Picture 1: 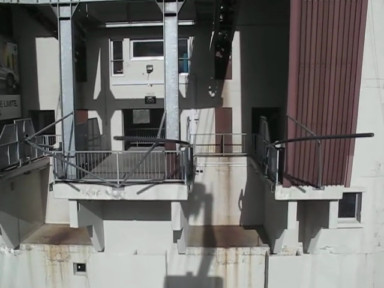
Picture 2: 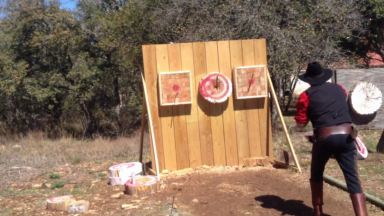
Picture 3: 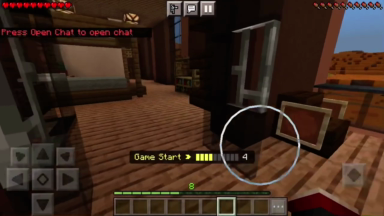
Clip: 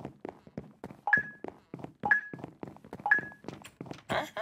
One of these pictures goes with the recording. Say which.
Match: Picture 3